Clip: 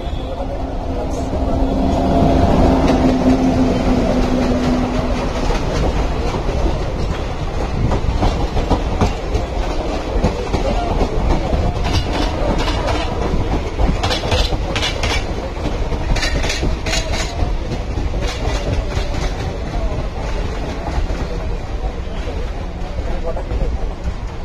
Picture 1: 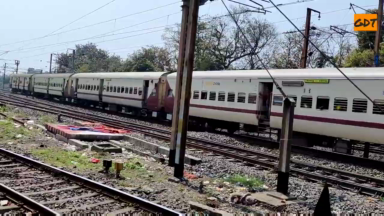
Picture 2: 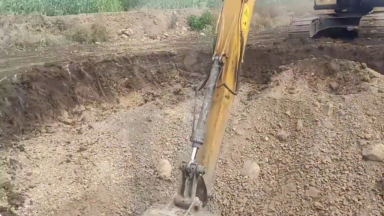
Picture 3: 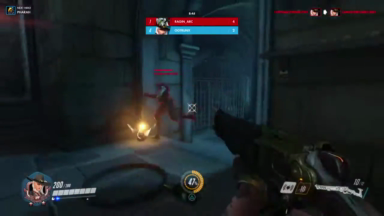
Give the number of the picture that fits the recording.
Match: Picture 1